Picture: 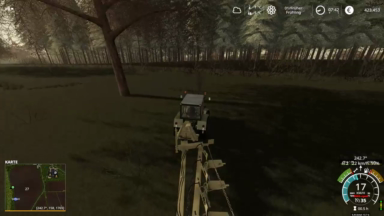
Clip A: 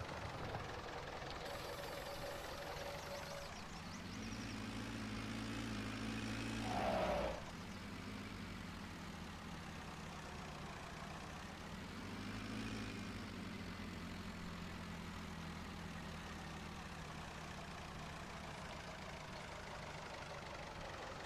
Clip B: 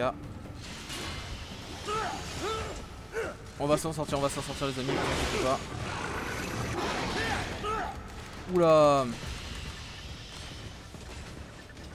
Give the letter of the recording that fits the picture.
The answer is A